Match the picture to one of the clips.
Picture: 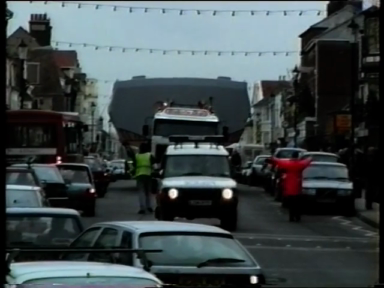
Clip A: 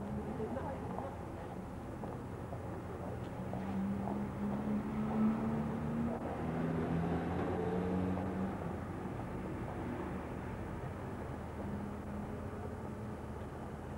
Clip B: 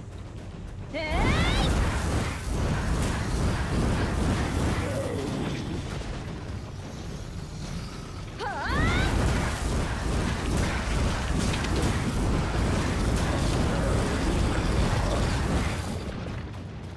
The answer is A